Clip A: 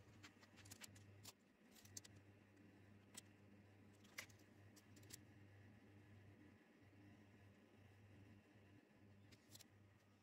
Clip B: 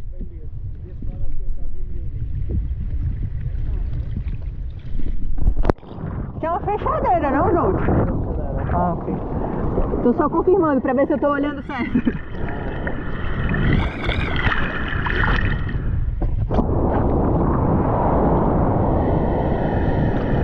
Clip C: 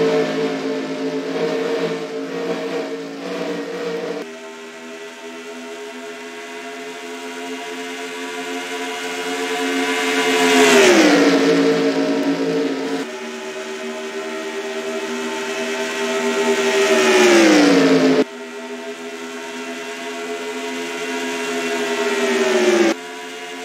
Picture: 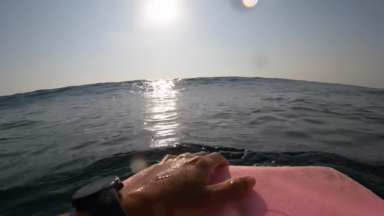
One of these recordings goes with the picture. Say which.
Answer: B